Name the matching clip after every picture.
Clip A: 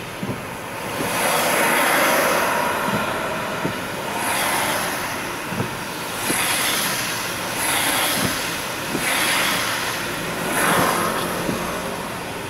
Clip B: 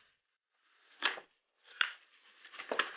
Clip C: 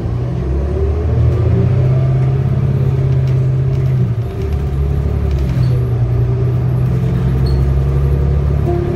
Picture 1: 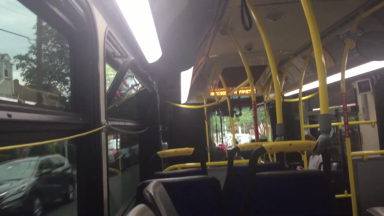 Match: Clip C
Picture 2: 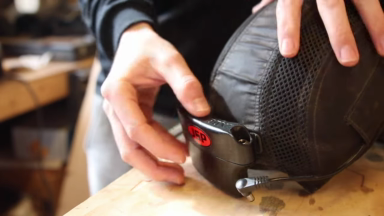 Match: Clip B